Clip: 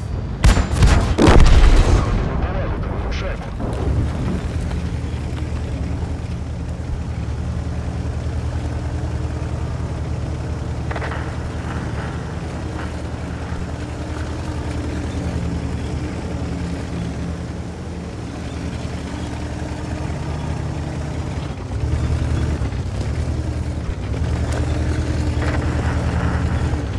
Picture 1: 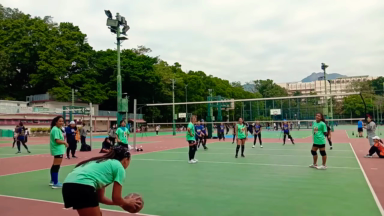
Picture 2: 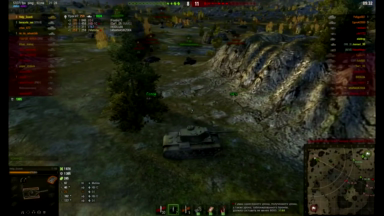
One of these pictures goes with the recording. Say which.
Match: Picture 2